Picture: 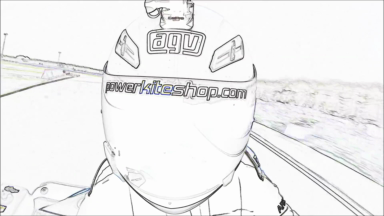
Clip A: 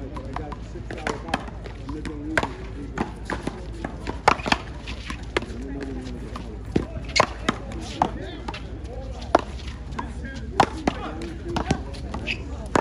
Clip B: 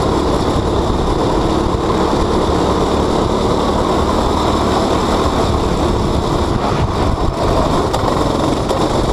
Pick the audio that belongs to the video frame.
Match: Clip B